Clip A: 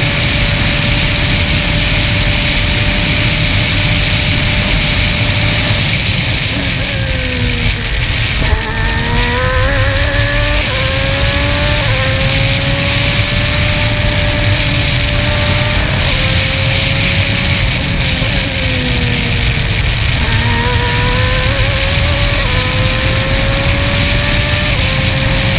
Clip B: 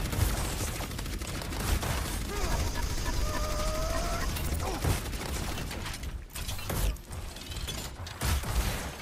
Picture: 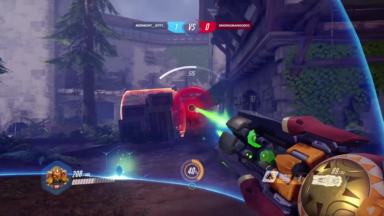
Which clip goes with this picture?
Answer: B